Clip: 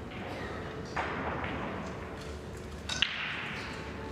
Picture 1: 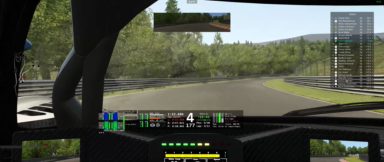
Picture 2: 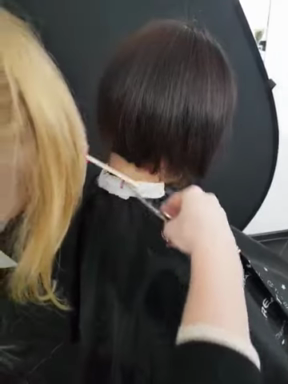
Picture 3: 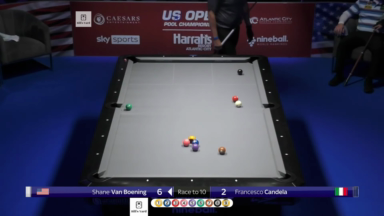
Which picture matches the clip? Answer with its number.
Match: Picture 3